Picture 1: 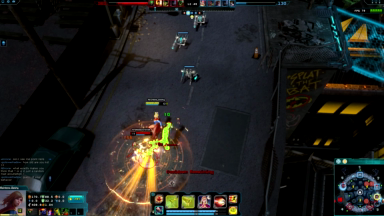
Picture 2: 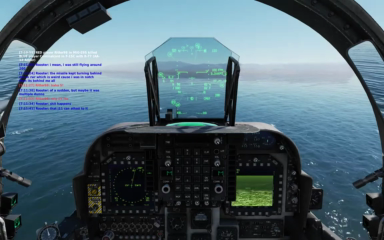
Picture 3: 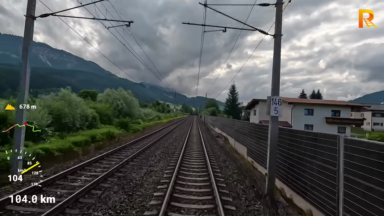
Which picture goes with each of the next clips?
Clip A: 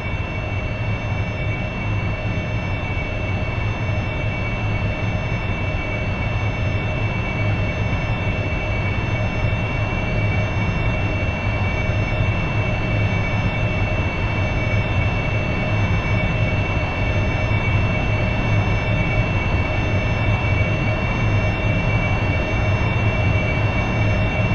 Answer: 2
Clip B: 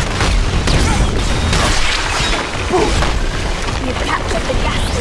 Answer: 1